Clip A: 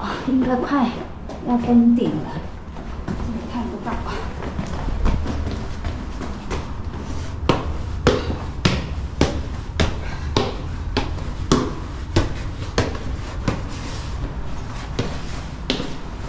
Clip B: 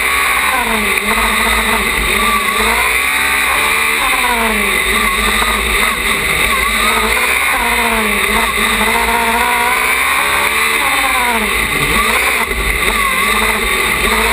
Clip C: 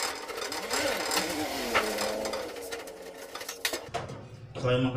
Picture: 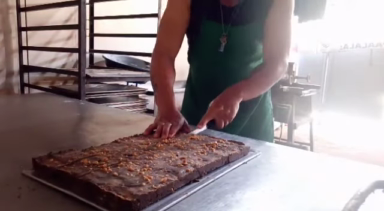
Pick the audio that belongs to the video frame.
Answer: C